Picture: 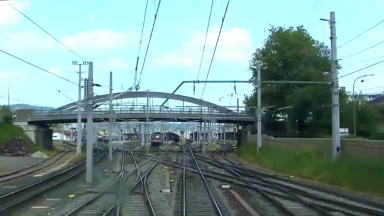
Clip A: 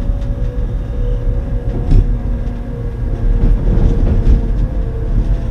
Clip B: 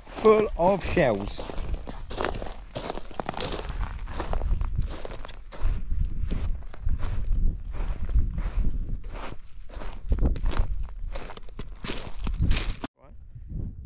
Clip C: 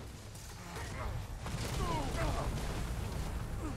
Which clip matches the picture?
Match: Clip A